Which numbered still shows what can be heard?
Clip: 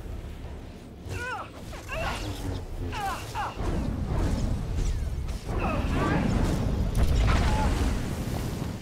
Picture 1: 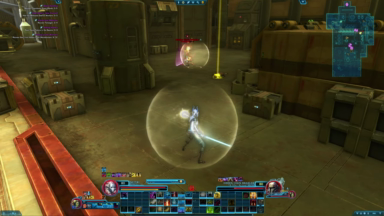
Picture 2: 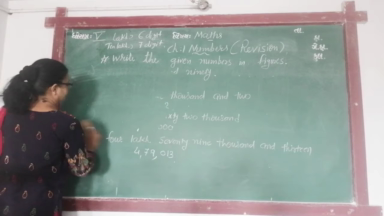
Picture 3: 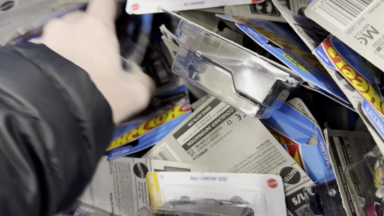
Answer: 1